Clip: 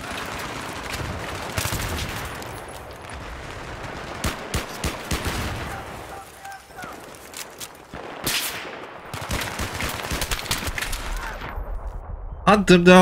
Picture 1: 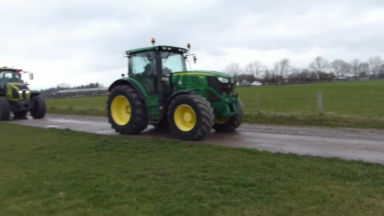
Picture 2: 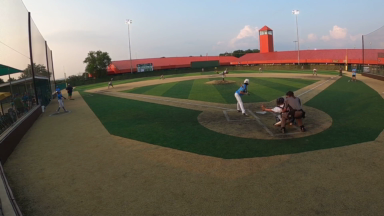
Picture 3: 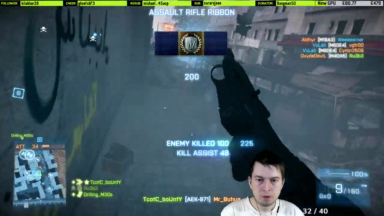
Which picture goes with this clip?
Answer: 3